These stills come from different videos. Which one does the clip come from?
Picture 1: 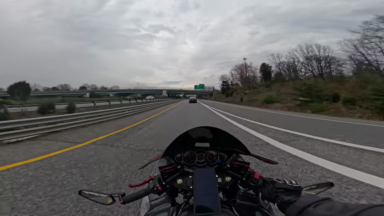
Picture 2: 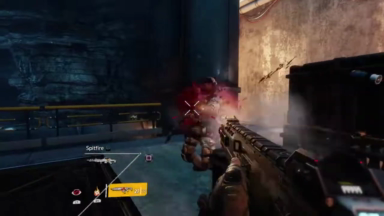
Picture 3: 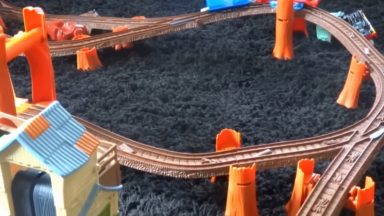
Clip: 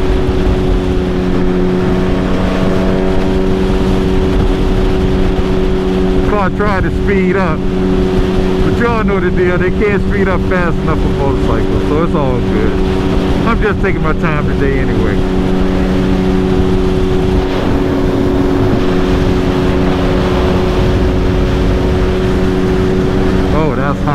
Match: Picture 1